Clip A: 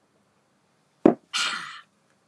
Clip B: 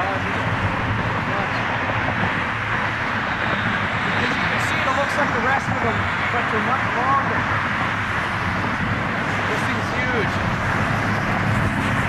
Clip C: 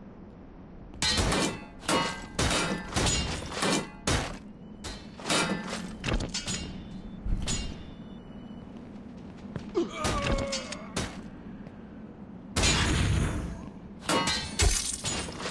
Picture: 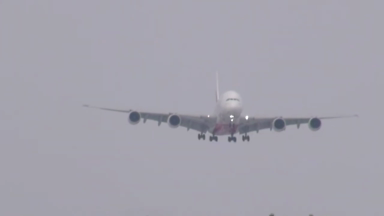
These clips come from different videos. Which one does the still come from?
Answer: B